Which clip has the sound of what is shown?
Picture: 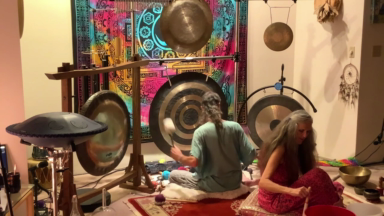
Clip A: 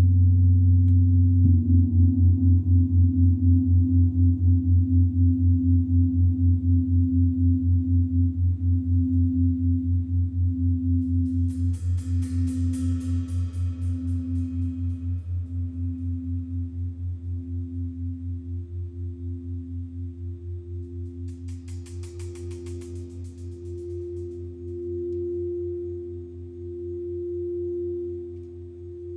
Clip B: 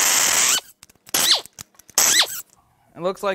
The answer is A